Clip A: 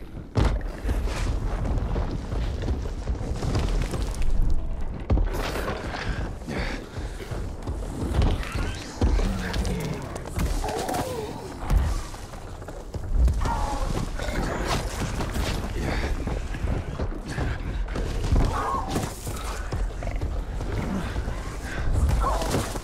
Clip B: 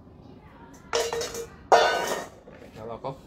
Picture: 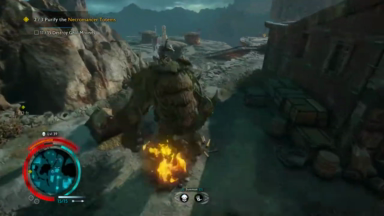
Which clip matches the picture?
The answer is A